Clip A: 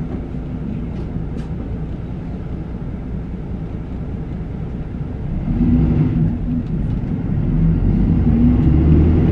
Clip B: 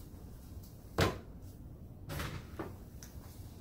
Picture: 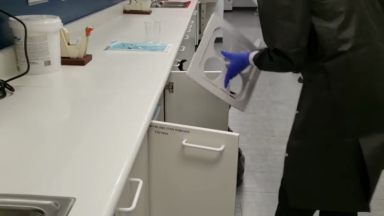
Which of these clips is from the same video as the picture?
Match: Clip B